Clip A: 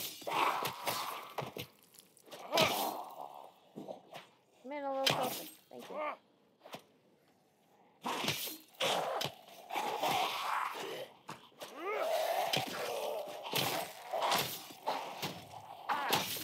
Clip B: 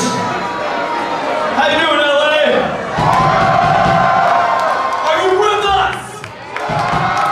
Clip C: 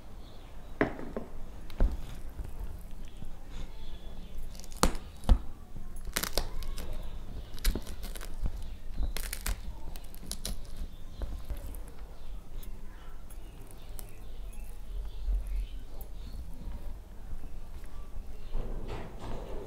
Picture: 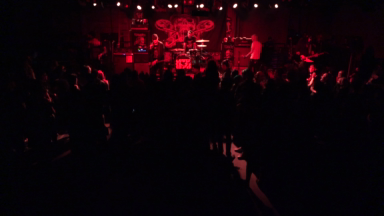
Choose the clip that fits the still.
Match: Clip B